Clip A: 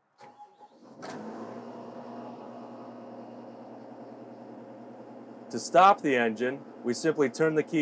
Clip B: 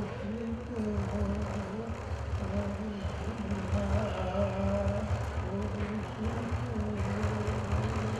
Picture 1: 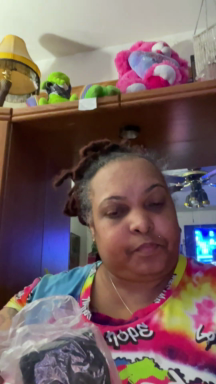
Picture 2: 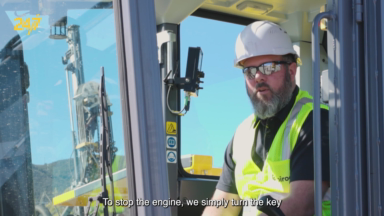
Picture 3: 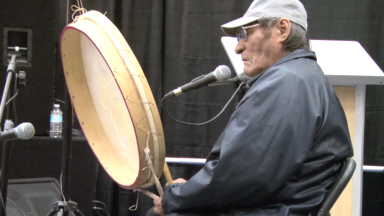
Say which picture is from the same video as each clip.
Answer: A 2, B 3